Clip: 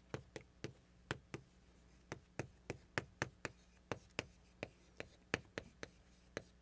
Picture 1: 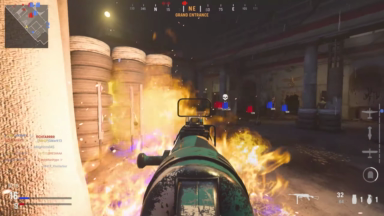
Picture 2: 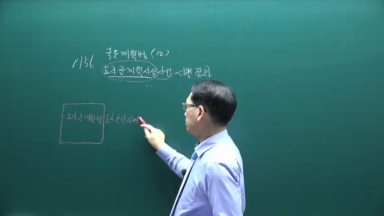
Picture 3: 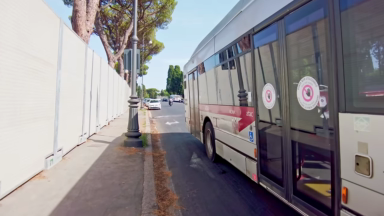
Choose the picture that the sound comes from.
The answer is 2